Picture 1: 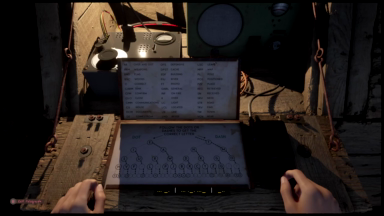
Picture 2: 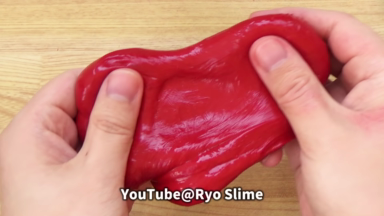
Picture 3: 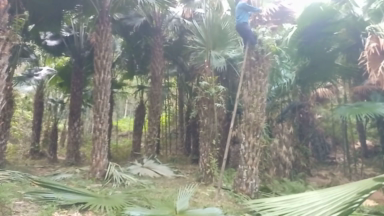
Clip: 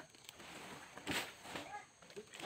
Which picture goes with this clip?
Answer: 3